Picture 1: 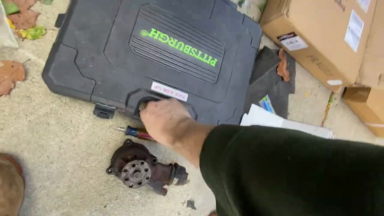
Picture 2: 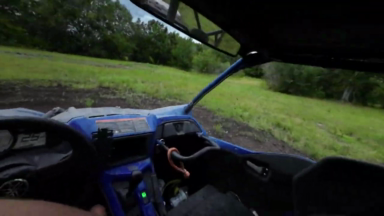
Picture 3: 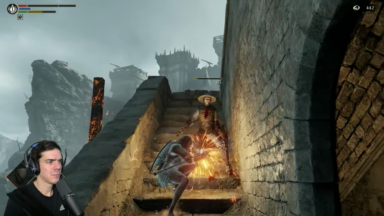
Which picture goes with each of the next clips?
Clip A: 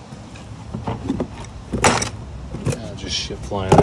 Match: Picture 1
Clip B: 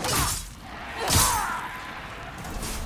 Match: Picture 3